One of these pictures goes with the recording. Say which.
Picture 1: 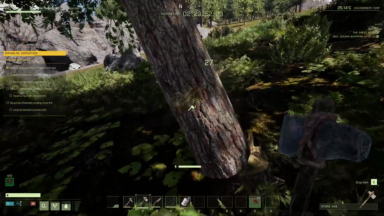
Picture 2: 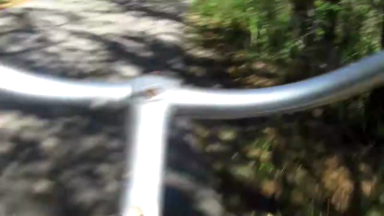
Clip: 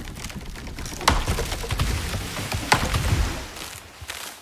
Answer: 1